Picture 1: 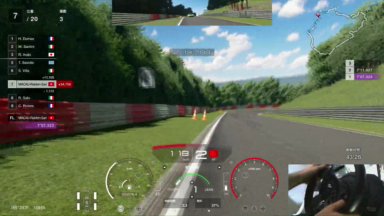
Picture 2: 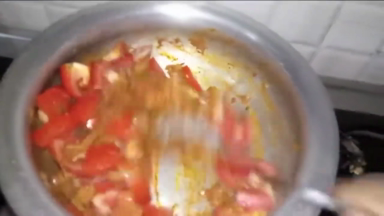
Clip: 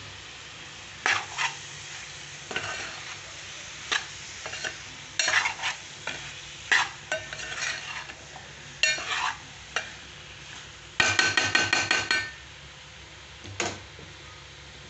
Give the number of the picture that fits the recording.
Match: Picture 2